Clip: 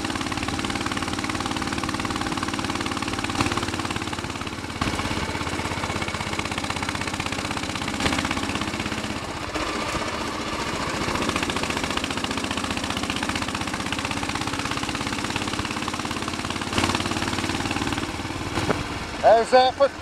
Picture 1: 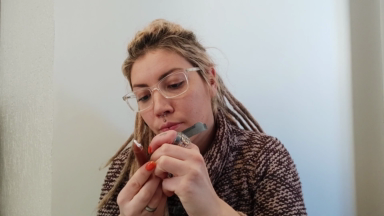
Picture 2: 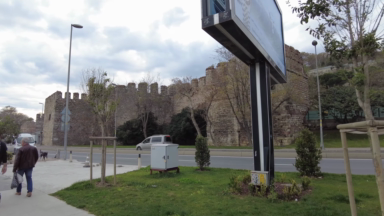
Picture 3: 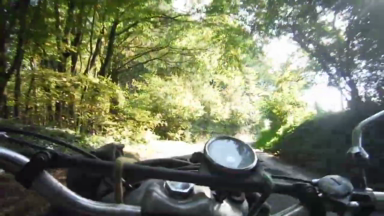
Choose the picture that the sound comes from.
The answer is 3